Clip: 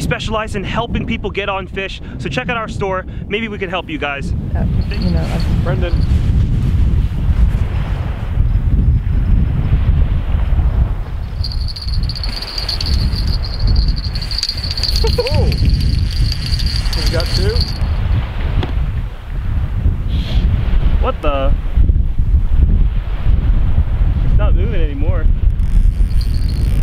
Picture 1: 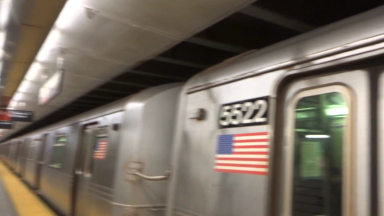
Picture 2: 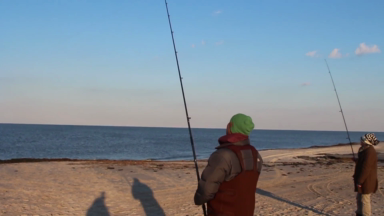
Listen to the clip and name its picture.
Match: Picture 2